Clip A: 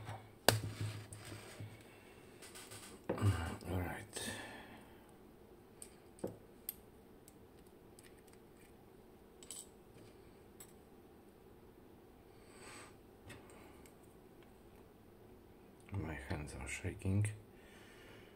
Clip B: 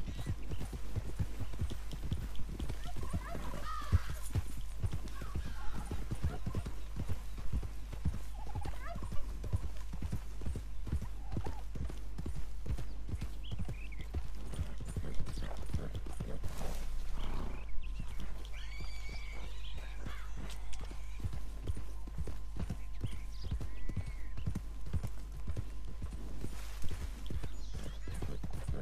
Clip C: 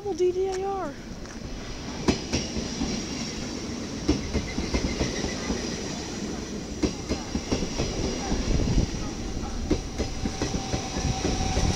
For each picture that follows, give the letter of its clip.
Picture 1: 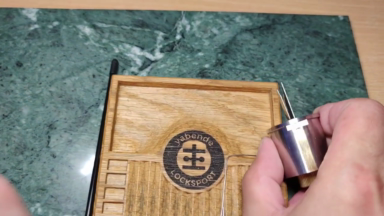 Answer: A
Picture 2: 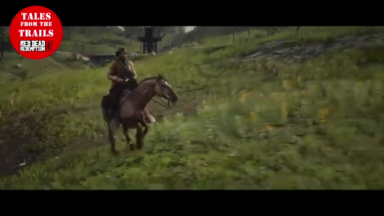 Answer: B